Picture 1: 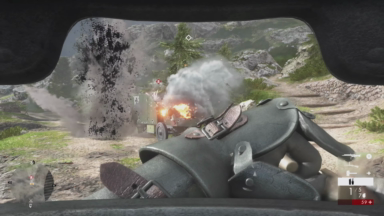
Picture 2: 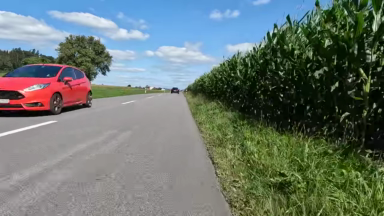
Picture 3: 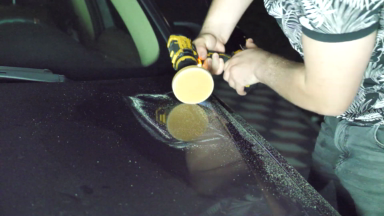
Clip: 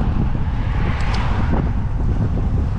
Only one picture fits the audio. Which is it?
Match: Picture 2